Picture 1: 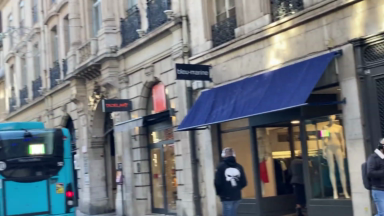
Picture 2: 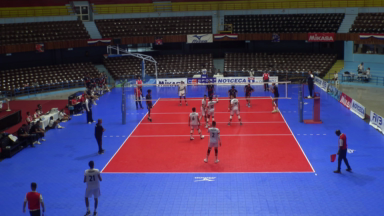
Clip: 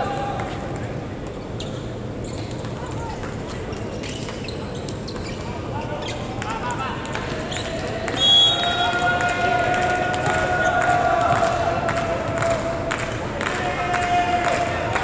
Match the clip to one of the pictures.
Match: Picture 2